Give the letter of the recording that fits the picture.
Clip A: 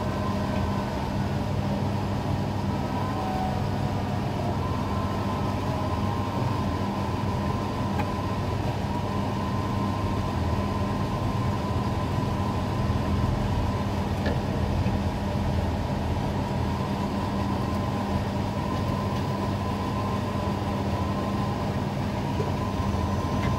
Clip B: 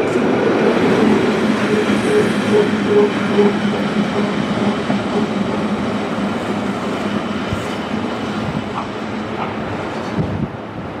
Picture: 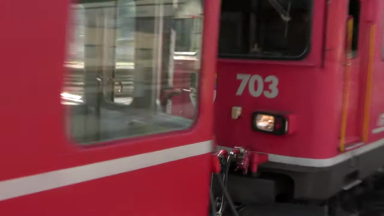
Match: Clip B